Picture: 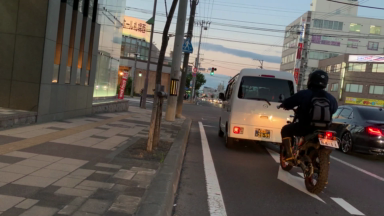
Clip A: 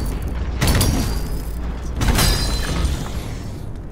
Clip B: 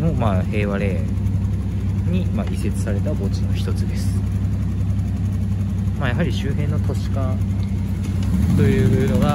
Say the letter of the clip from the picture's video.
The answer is B